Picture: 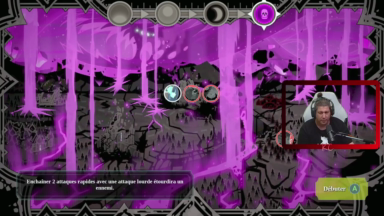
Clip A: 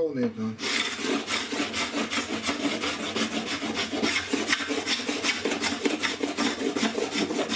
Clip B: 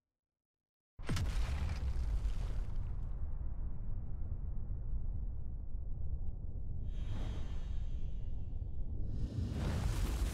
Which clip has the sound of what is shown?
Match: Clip B